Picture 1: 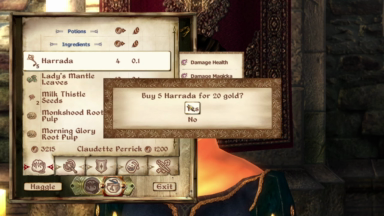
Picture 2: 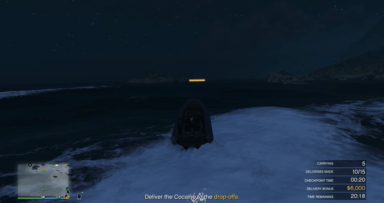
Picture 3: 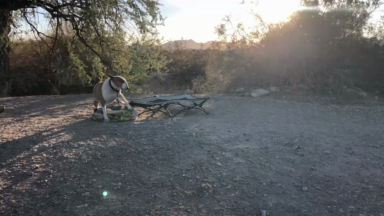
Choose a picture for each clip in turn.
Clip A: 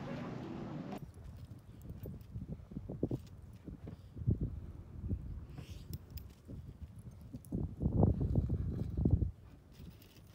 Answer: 3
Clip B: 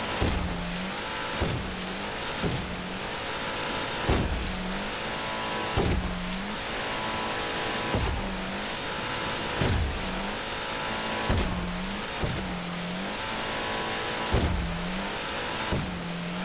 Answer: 2